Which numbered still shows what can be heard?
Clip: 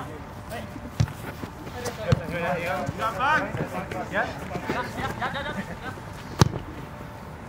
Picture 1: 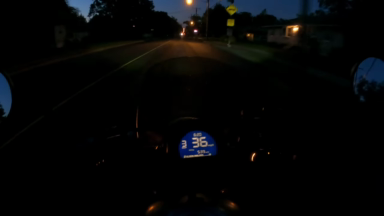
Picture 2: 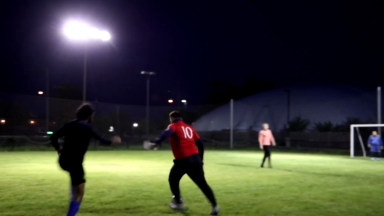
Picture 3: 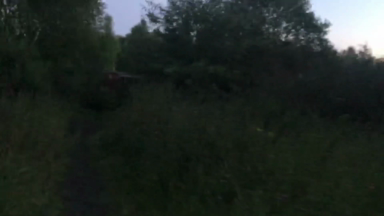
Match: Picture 2